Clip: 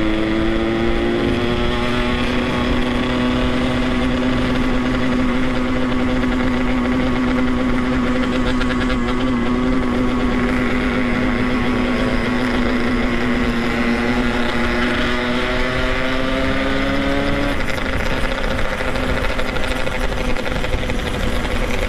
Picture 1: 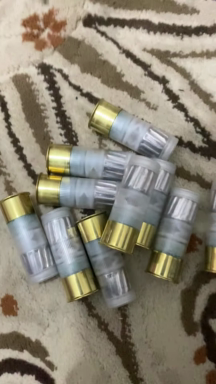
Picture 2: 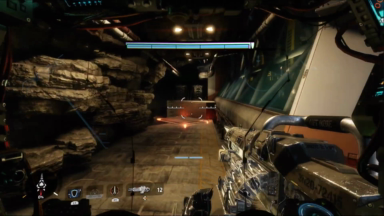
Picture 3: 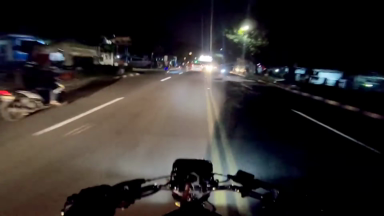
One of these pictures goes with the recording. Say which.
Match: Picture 3